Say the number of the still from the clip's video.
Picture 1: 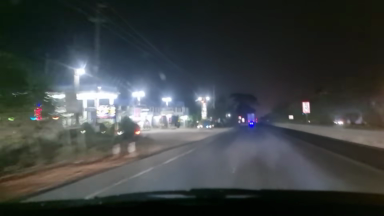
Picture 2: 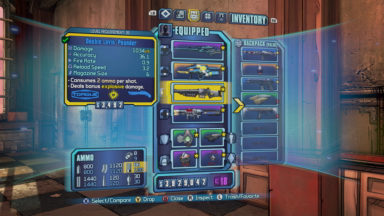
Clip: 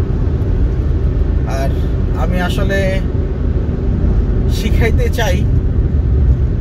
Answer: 1